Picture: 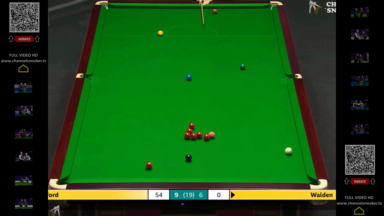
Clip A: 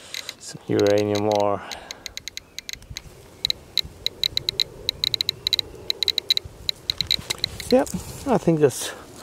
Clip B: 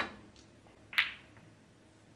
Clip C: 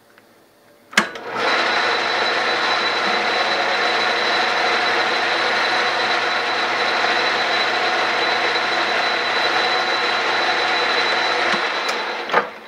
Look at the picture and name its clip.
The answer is B